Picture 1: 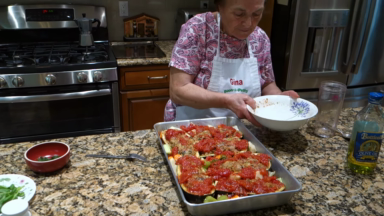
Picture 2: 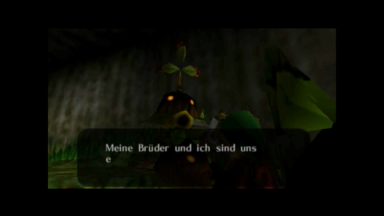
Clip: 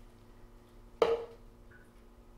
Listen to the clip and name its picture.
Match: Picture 1